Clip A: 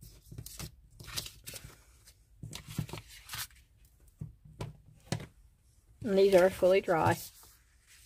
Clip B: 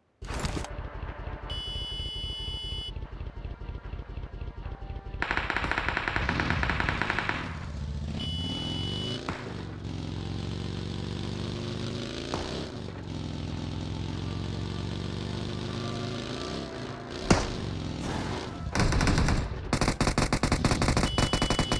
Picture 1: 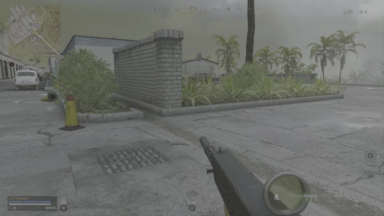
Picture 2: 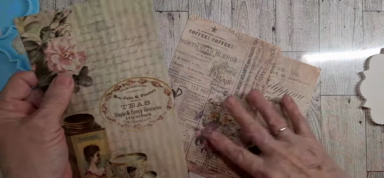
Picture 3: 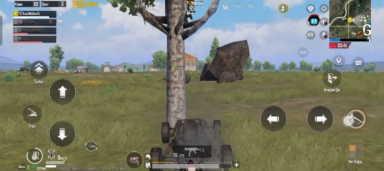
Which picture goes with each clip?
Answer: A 2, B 3